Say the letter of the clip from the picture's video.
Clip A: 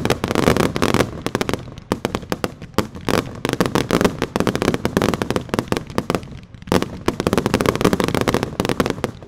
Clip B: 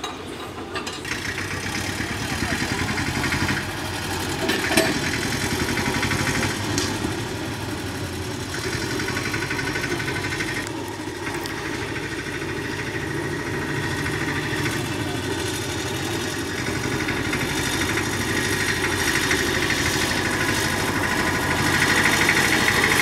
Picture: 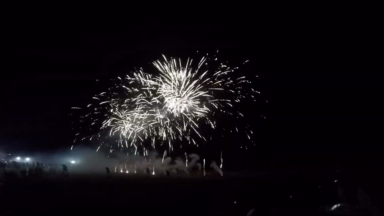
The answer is A